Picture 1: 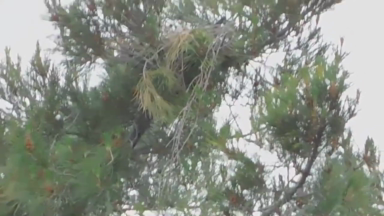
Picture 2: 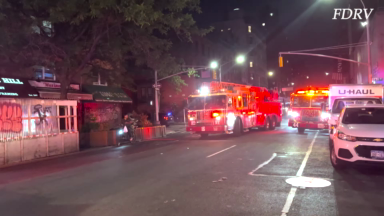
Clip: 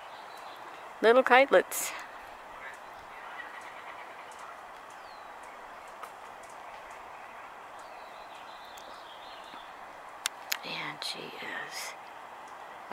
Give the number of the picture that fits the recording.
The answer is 1